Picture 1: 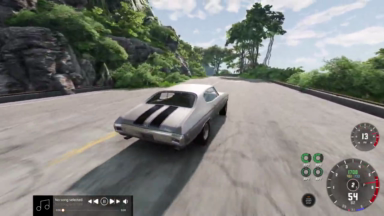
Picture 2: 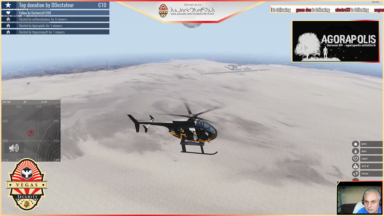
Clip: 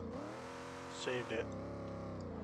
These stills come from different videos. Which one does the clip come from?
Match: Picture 1